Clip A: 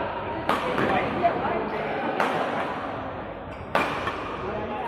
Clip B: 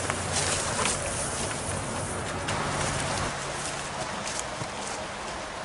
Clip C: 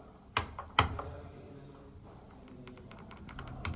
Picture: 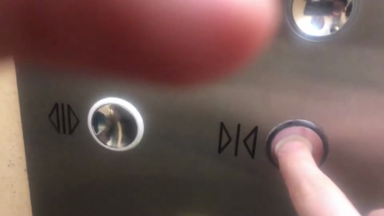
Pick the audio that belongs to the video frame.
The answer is C